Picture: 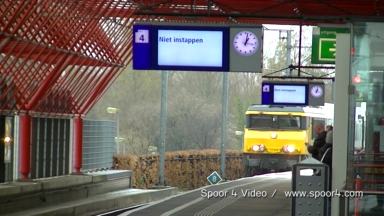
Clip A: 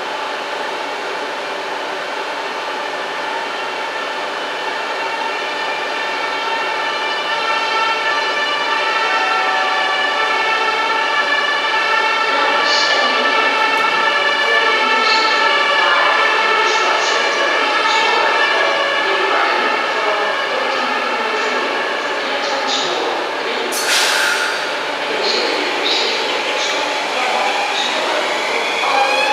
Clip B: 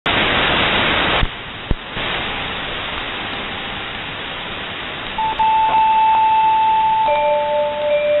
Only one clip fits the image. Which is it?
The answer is A